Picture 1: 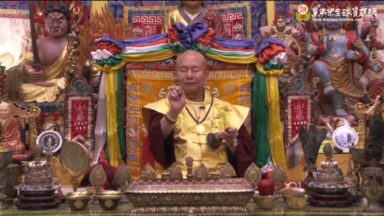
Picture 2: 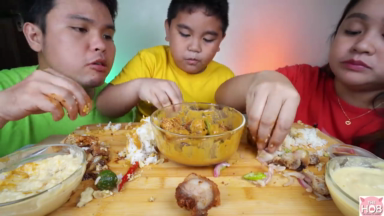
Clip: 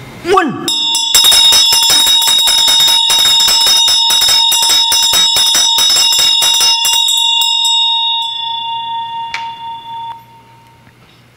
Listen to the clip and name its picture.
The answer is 1